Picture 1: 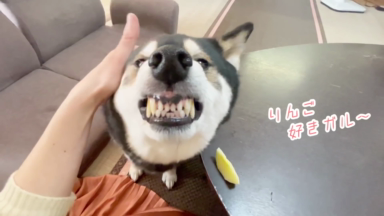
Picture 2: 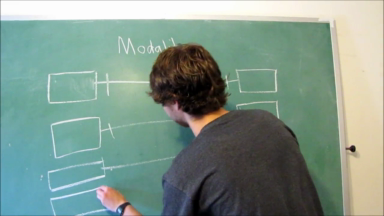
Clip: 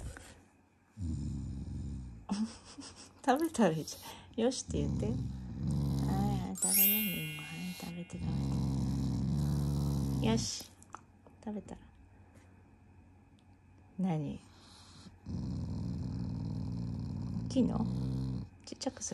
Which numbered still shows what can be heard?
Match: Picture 1